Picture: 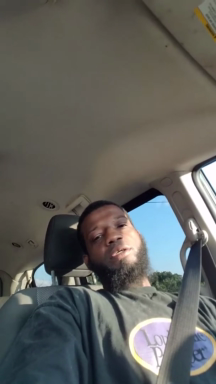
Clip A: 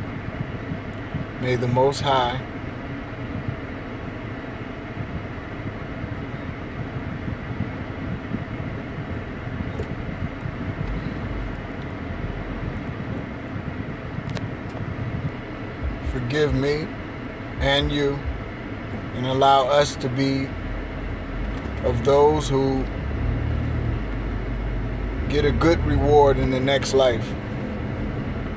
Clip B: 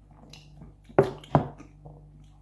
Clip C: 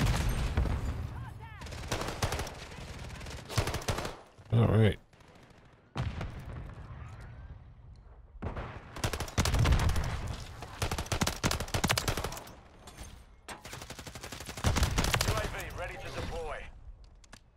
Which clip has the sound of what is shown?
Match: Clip A